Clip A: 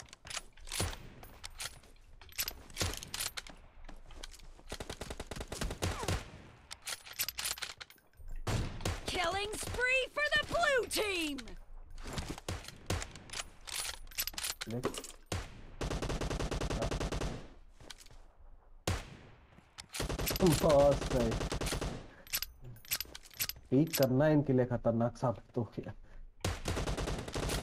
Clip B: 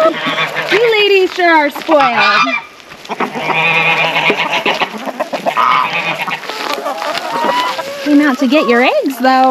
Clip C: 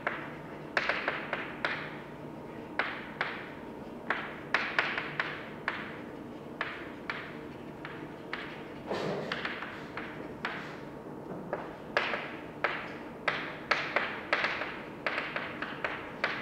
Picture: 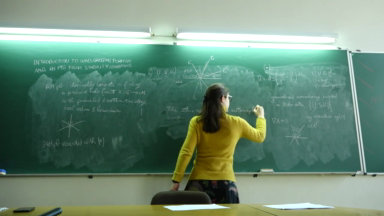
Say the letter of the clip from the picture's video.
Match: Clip C